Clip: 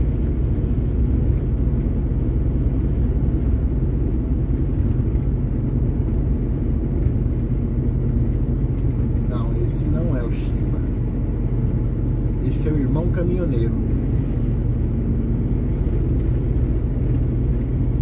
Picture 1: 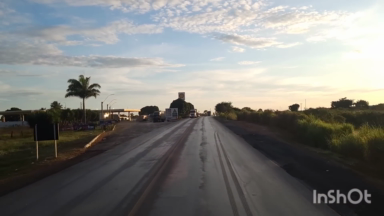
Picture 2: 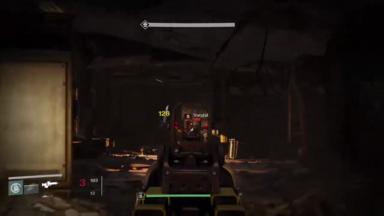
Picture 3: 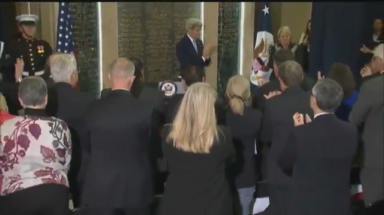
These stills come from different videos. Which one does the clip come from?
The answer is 1